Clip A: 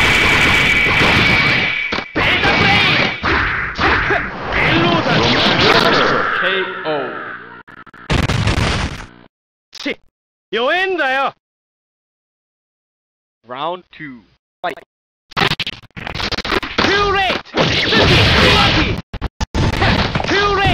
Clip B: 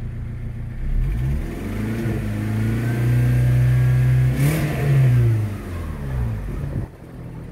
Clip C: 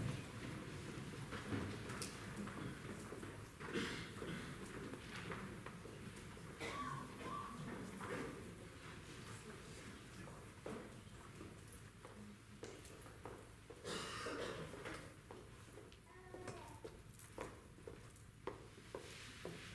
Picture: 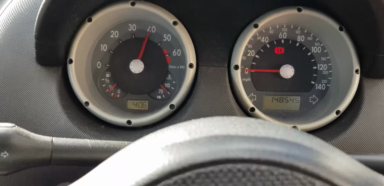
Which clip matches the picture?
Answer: B